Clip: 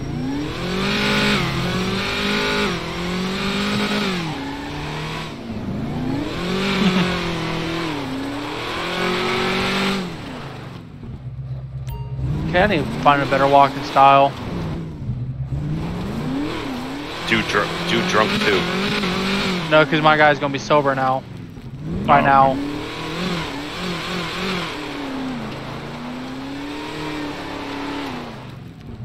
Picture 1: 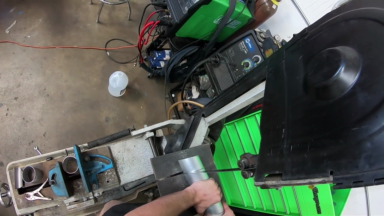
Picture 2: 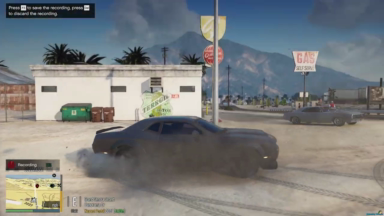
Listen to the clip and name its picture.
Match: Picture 2